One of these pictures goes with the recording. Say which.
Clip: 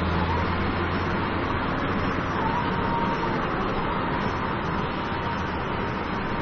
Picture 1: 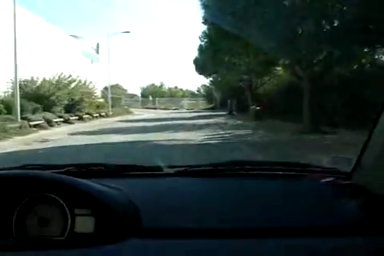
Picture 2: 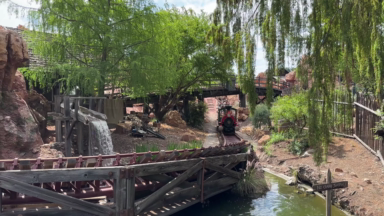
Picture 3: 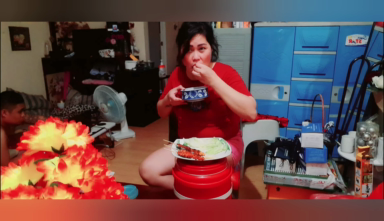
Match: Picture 1